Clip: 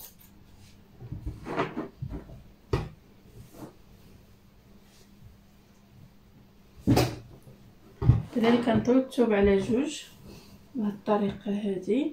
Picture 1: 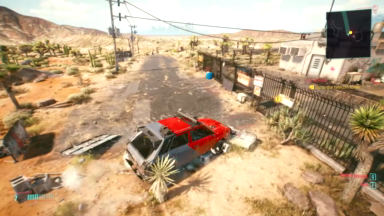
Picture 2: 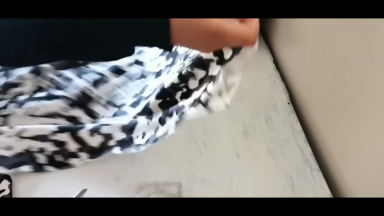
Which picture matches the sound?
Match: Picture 2